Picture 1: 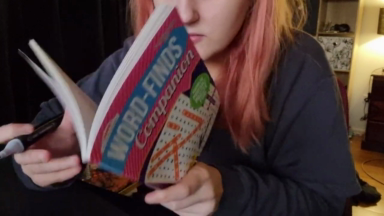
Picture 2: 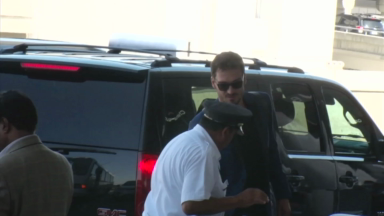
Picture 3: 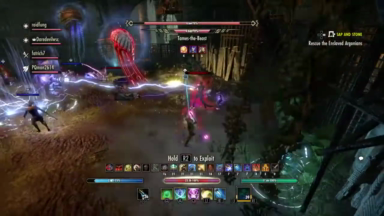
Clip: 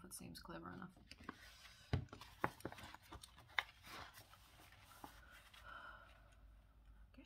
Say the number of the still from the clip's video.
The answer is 1